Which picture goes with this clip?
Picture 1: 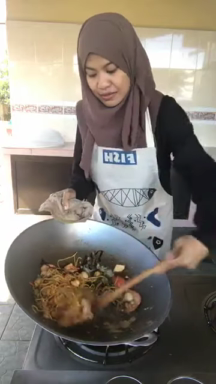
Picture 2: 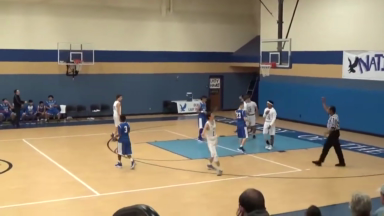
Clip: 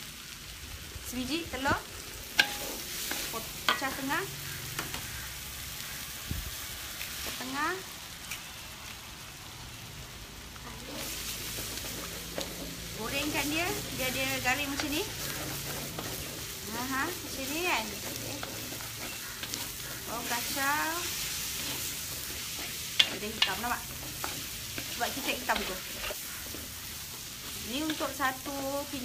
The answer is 1